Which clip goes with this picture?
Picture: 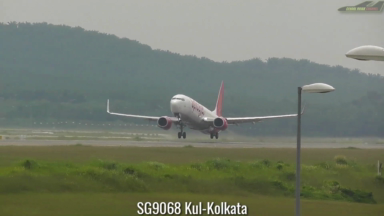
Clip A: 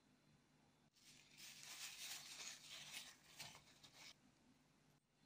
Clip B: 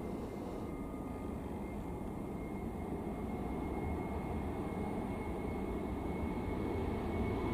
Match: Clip B